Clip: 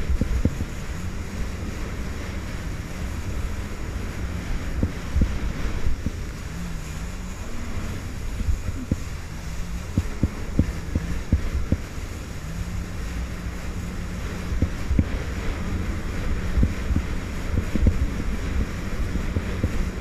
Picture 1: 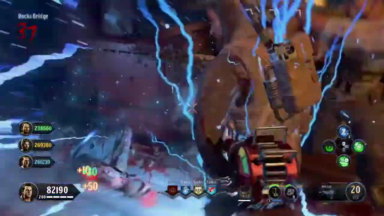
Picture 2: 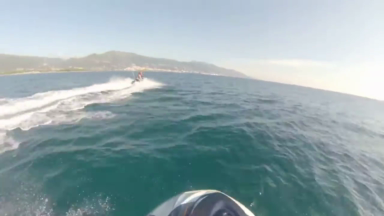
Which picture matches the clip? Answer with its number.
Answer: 2